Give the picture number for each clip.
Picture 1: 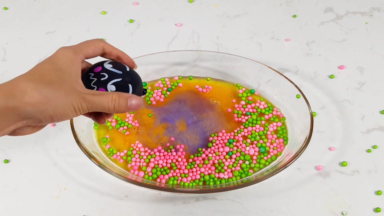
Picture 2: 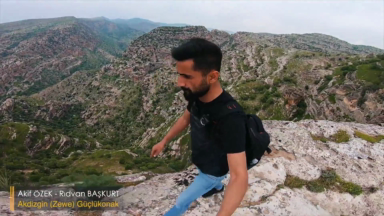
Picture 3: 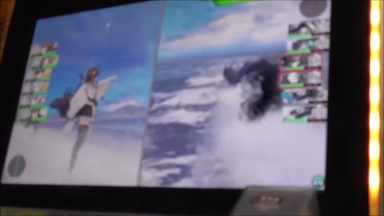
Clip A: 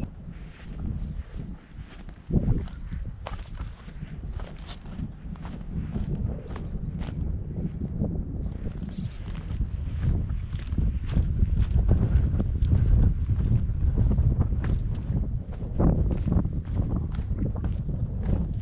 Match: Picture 2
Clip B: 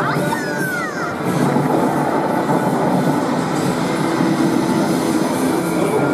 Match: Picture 3